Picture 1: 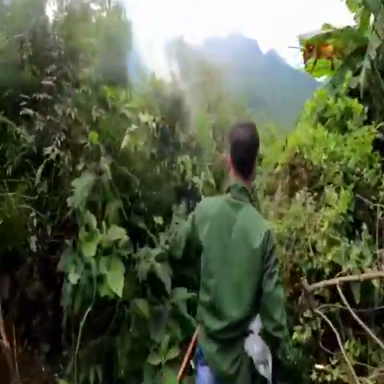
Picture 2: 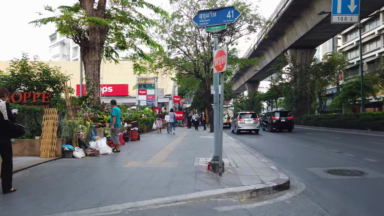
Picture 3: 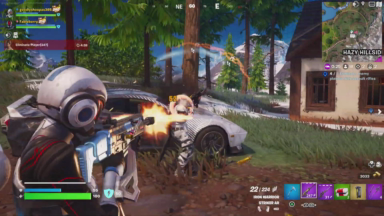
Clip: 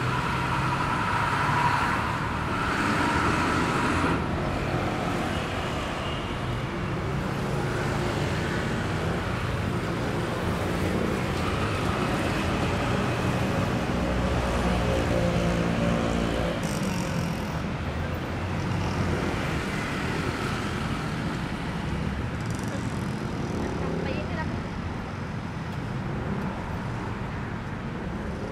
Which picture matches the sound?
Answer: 2